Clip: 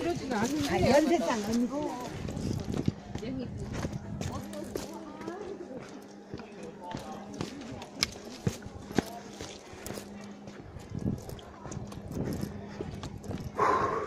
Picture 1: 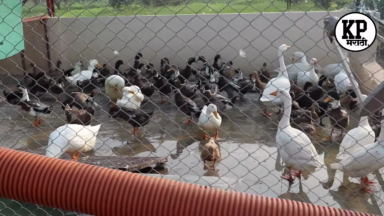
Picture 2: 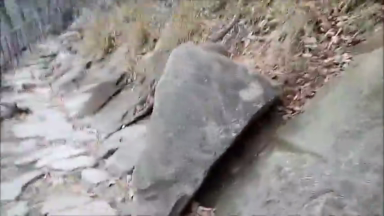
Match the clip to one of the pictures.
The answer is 2